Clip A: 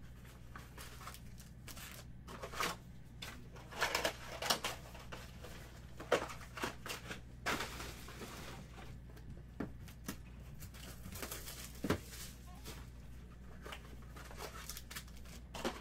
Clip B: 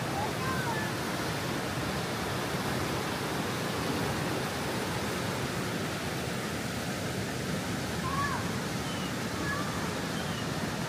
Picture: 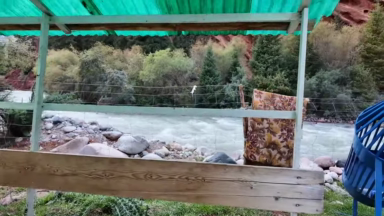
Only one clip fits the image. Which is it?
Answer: B